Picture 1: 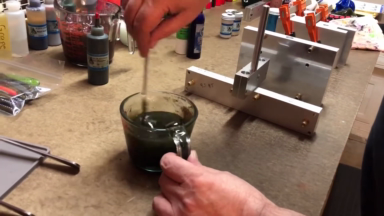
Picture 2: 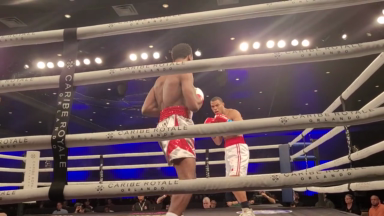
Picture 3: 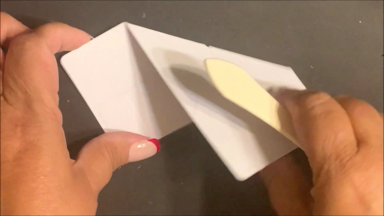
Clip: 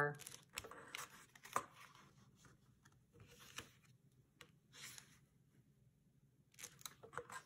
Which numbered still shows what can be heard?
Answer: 3